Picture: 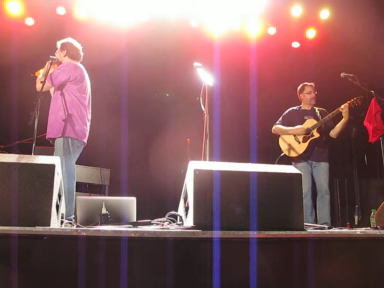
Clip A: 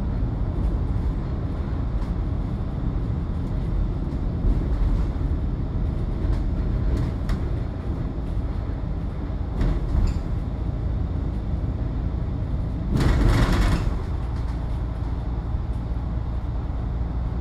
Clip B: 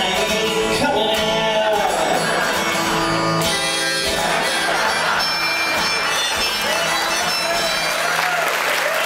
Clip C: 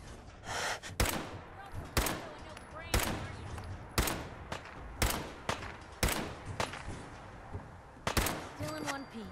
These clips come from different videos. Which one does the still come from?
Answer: B